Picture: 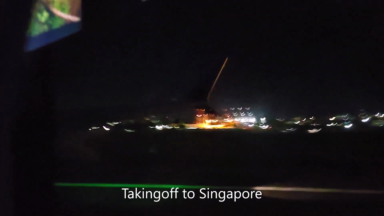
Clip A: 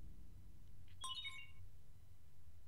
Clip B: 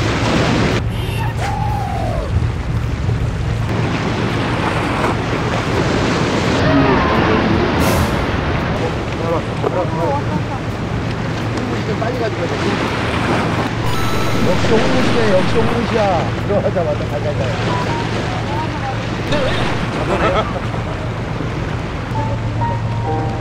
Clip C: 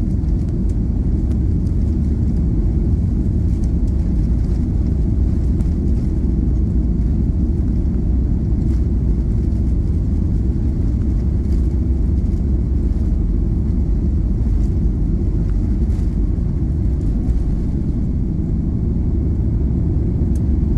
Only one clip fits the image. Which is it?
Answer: C